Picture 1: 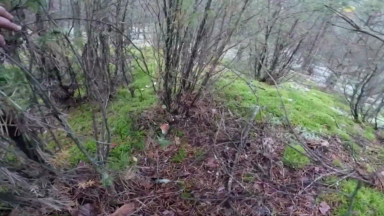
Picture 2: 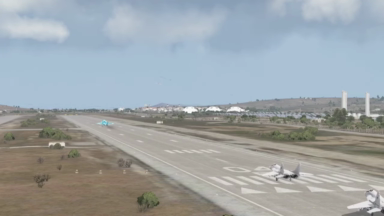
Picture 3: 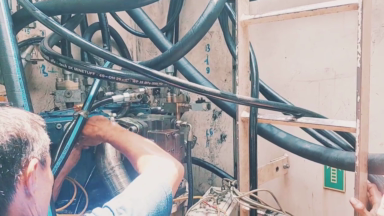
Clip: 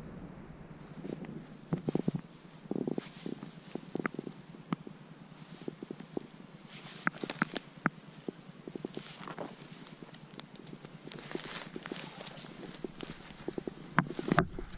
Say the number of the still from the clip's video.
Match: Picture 1